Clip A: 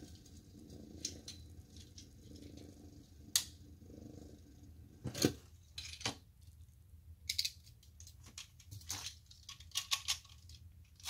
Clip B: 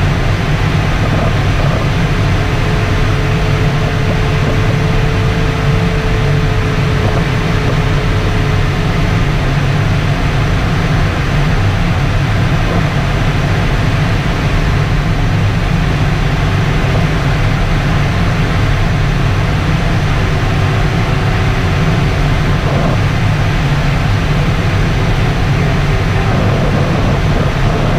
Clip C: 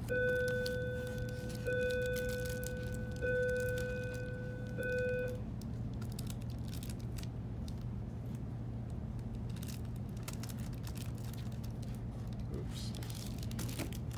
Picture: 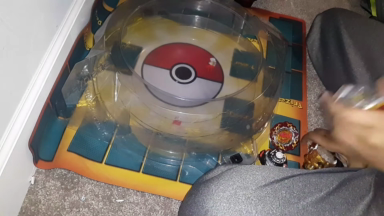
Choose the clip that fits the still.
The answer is A